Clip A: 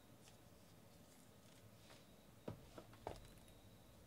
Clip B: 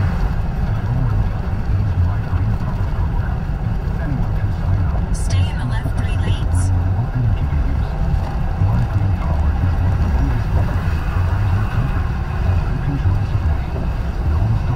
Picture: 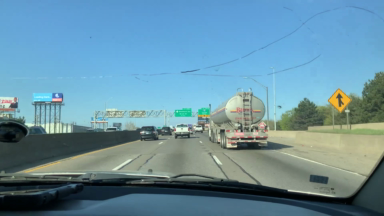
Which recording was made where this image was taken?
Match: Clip B